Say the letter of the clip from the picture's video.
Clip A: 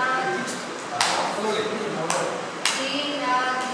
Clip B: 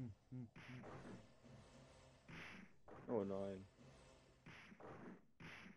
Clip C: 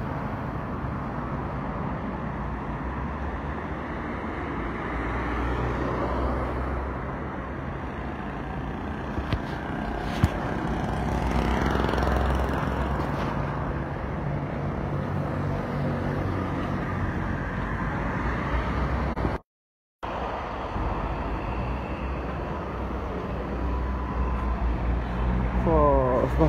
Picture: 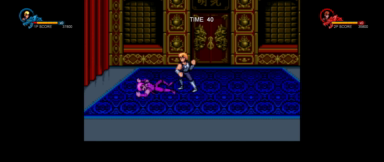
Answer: B